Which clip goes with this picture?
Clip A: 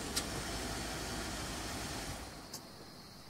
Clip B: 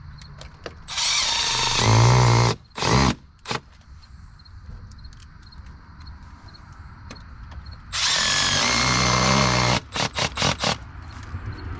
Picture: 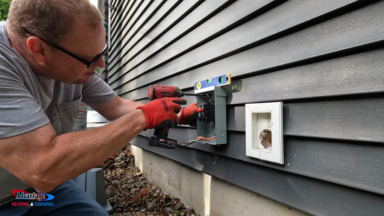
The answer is B